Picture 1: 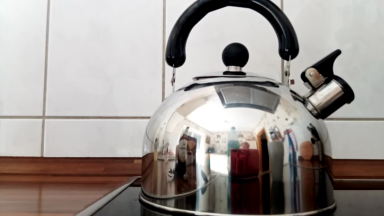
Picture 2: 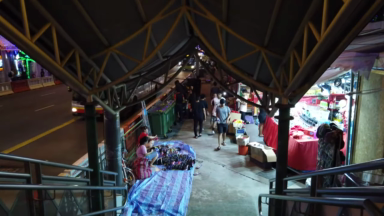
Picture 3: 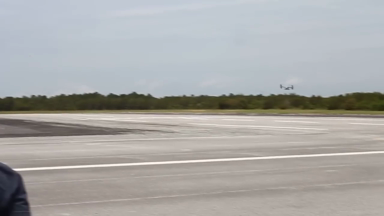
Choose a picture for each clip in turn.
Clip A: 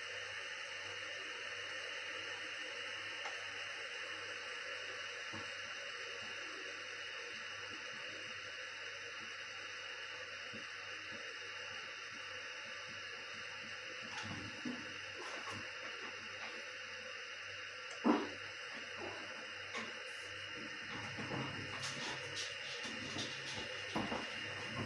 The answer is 1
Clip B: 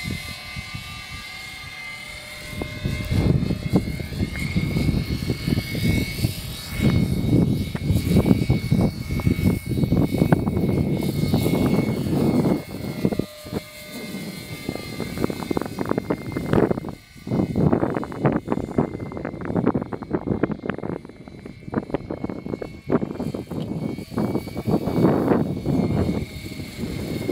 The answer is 3